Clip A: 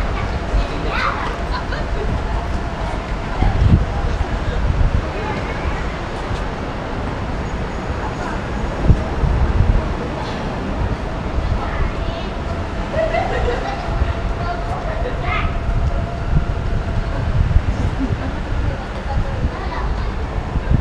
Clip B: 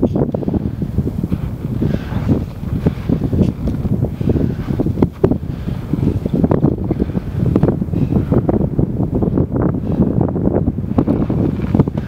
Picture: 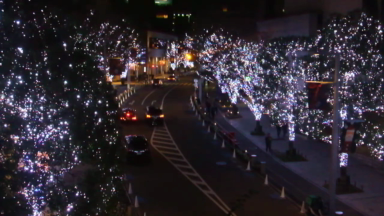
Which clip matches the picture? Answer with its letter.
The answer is A